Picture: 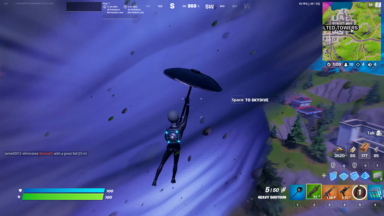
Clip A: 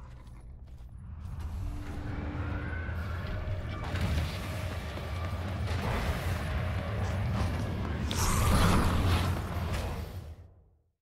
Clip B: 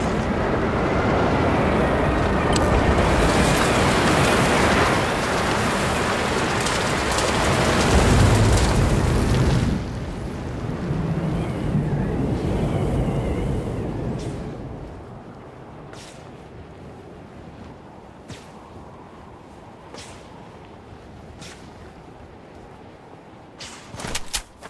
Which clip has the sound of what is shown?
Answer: B